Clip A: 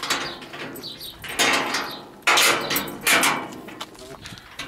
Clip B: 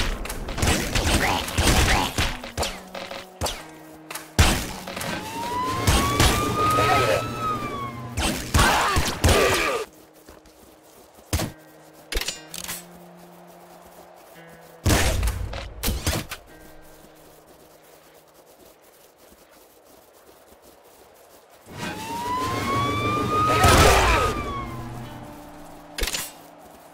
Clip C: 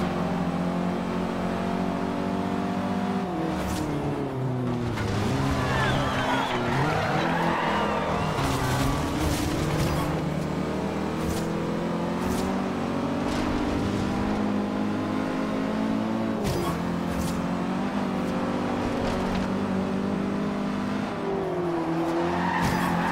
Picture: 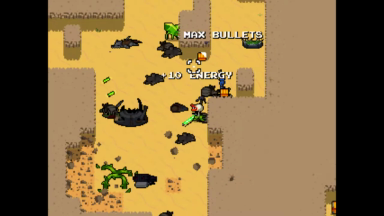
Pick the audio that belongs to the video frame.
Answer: B